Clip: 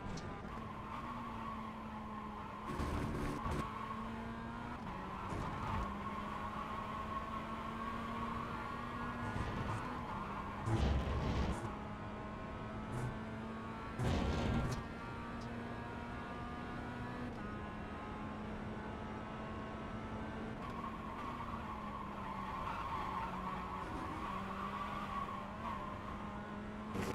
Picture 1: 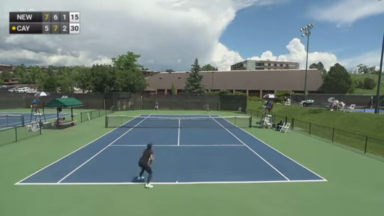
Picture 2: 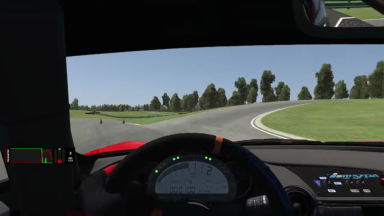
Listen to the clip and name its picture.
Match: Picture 2